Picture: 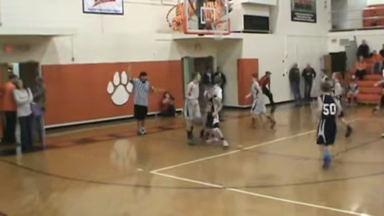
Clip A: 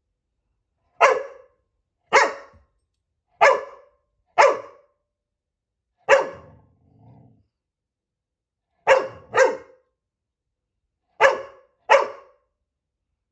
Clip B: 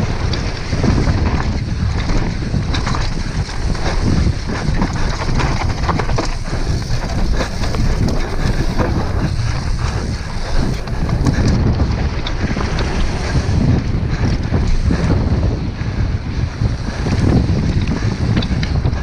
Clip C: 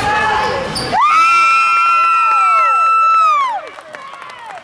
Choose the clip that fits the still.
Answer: C